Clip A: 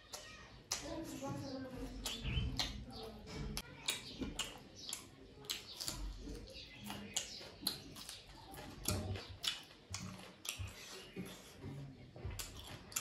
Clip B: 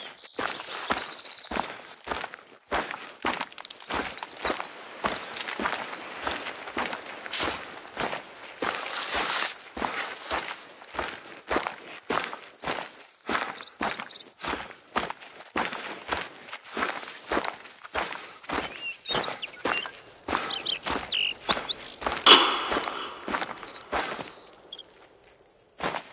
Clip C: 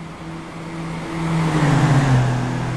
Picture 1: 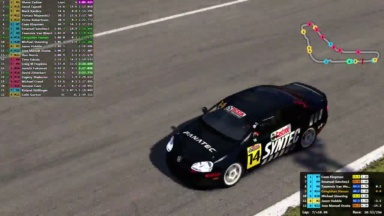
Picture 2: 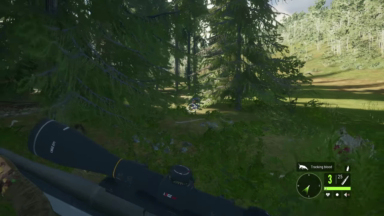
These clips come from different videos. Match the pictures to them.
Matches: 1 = C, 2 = B